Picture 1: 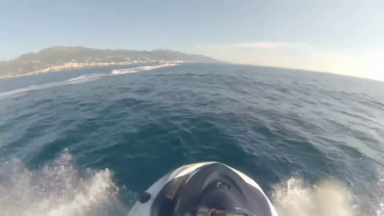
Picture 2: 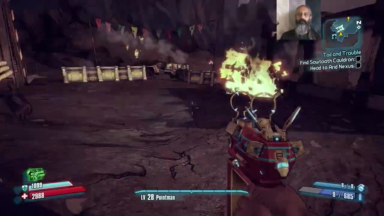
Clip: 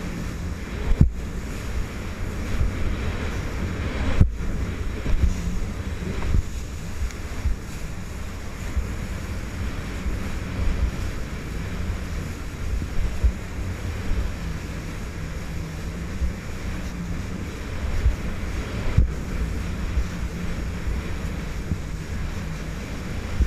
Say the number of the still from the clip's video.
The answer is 1